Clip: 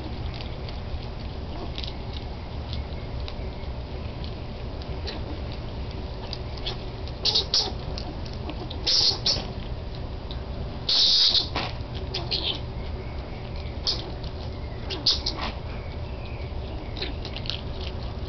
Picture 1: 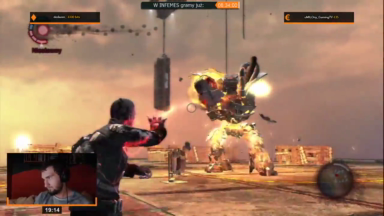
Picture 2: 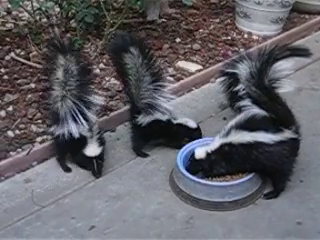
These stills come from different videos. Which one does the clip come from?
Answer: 2